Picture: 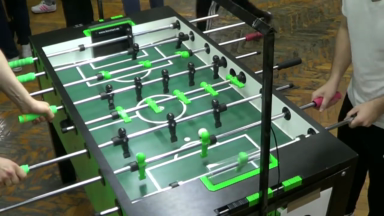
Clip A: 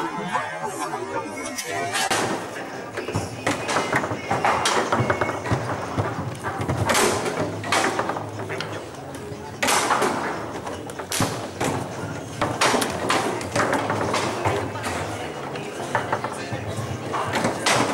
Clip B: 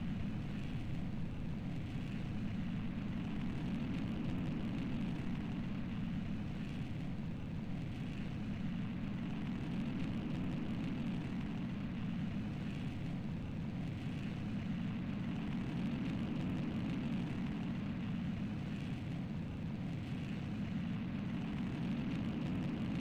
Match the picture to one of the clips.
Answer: A